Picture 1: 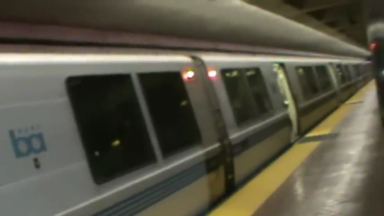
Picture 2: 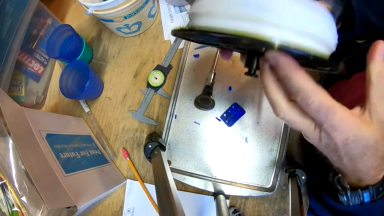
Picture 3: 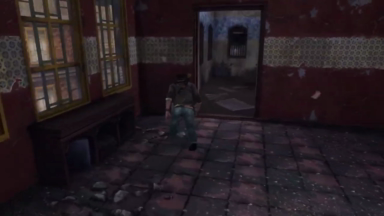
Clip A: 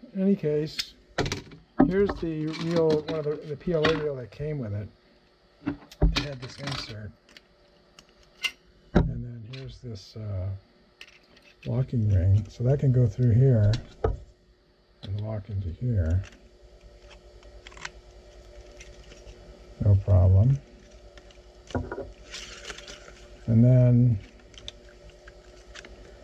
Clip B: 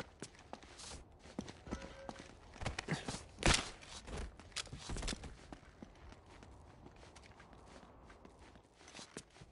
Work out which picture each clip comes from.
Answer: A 2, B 3